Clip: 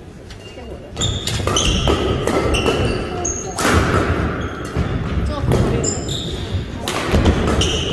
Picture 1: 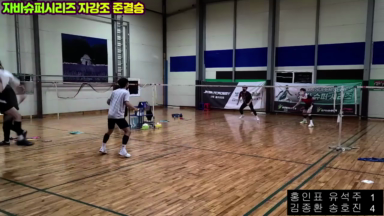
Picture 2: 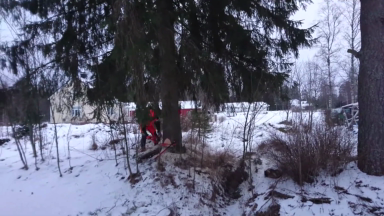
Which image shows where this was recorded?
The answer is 1